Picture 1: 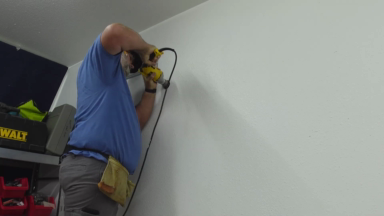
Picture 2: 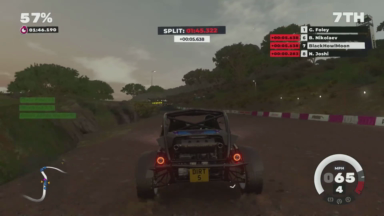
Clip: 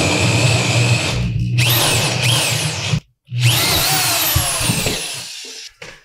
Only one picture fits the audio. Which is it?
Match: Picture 1